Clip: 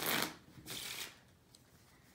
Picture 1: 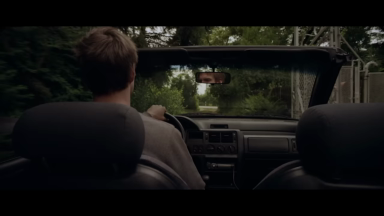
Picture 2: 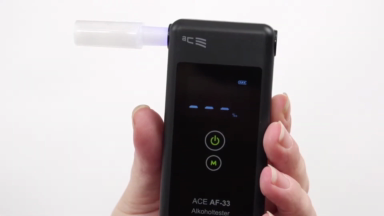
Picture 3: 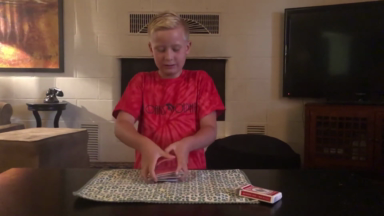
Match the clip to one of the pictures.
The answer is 3